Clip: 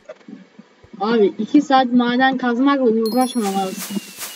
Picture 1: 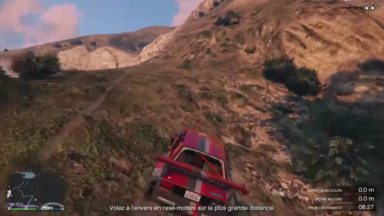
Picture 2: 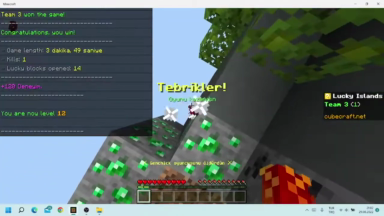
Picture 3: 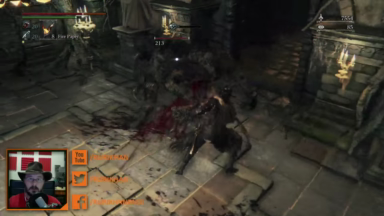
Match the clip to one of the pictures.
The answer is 2